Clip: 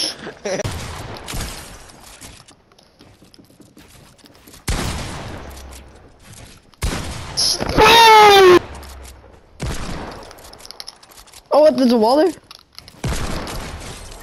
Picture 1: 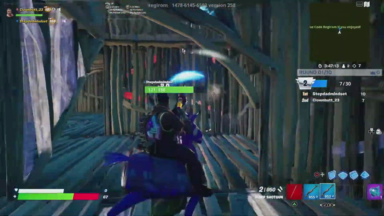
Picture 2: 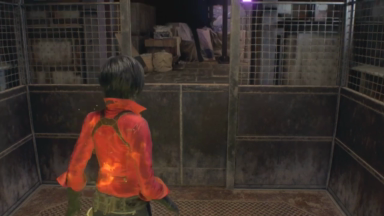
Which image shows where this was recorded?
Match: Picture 1